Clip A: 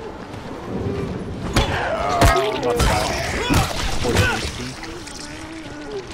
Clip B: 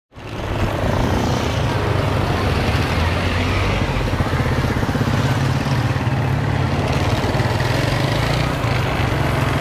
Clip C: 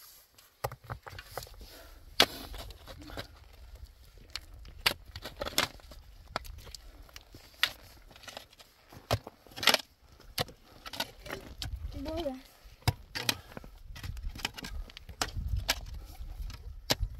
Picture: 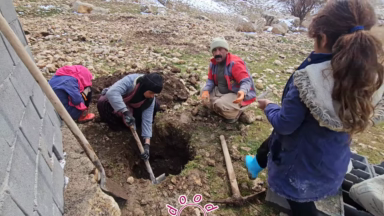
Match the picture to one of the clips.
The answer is C